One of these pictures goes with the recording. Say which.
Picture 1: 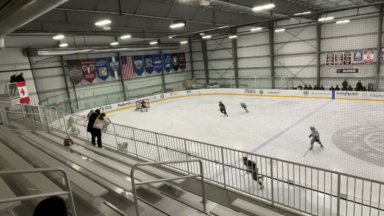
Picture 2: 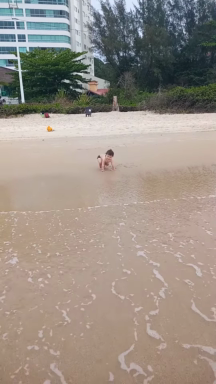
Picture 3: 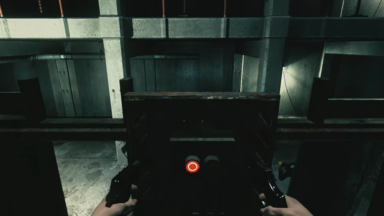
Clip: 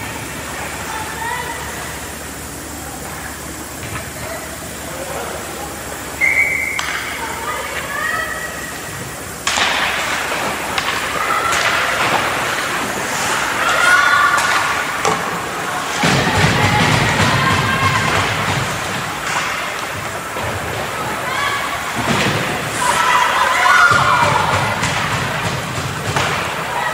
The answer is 1